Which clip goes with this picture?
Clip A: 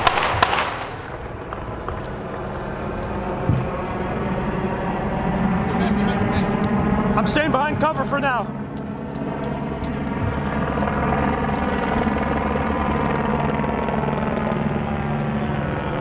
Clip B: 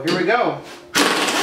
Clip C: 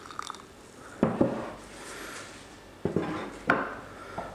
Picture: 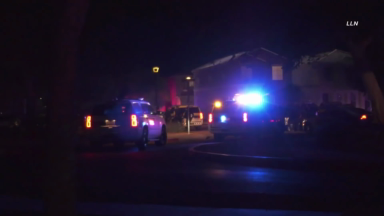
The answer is A